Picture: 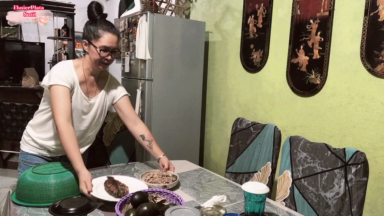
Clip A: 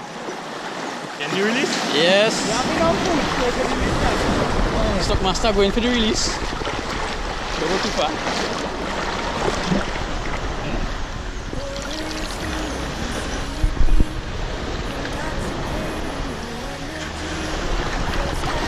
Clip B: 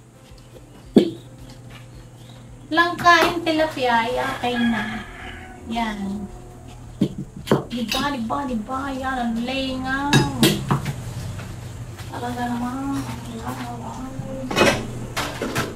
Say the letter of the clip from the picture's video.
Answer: B